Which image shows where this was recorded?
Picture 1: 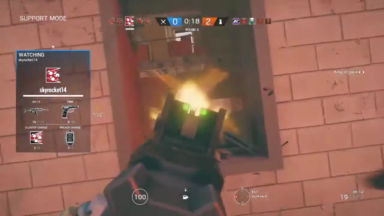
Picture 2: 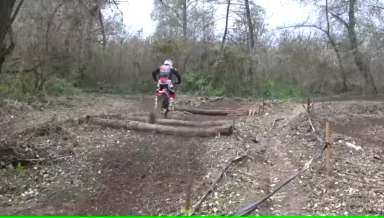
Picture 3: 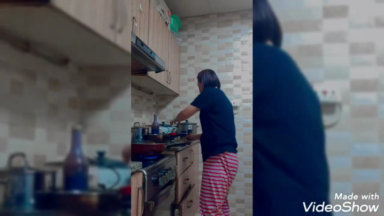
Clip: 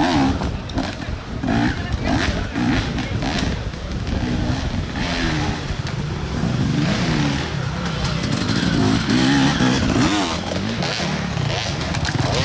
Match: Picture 2